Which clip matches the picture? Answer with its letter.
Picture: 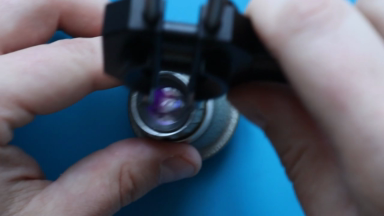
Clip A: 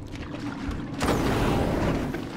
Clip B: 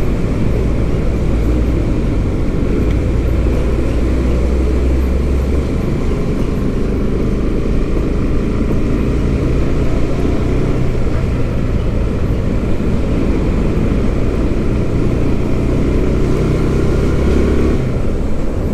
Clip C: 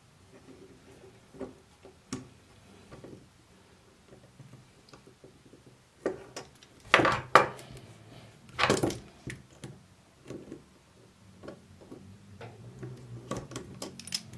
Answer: C